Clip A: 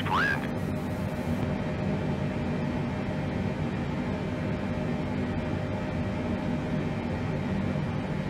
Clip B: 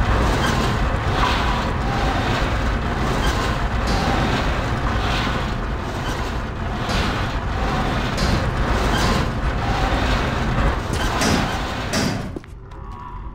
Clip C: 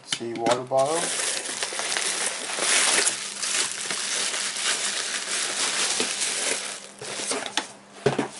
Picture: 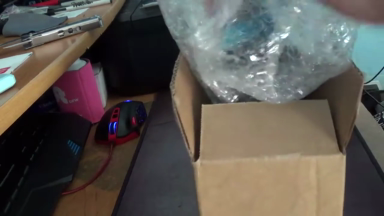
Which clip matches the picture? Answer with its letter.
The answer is C